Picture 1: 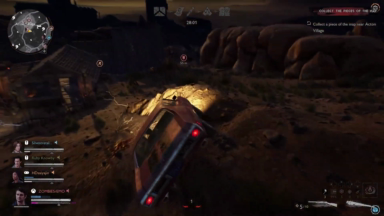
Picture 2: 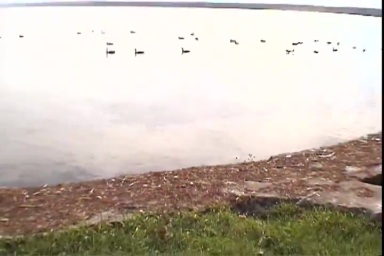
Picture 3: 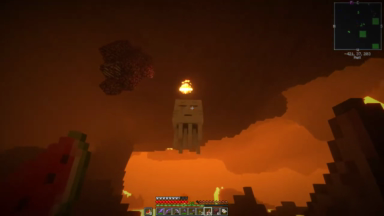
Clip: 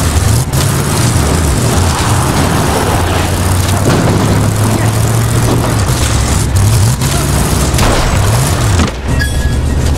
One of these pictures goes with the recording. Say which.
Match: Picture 1